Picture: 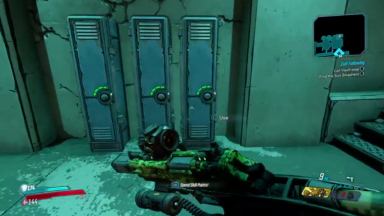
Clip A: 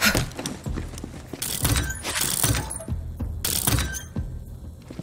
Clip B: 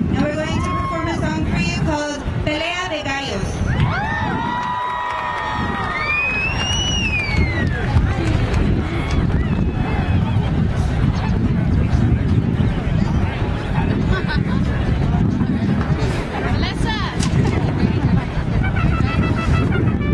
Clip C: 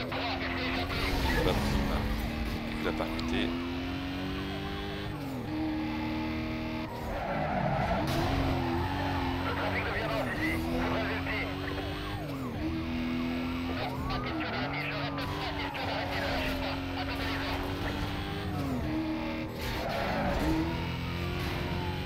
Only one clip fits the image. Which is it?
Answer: A